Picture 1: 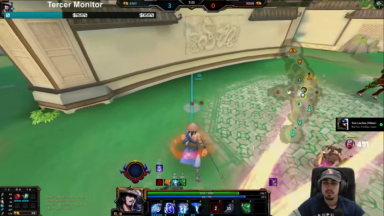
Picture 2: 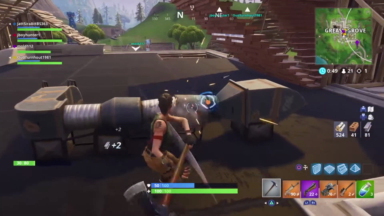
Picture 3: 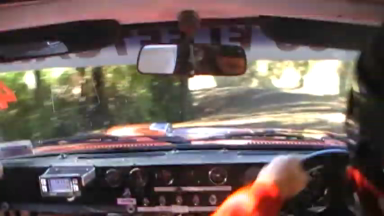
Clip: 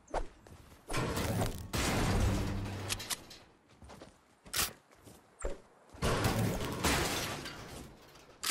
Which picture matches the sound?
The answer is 2